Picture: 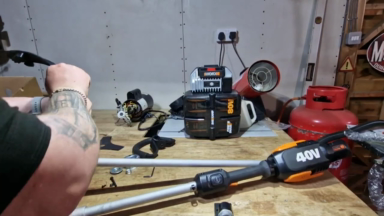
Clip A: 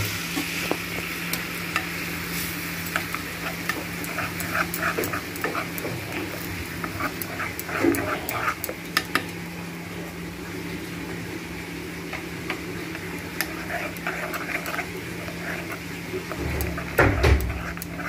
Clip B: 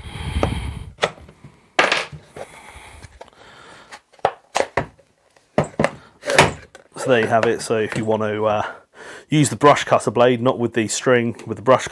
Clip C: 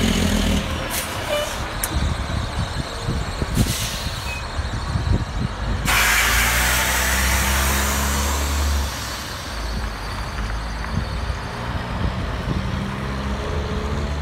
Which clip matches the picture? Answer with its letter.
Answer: B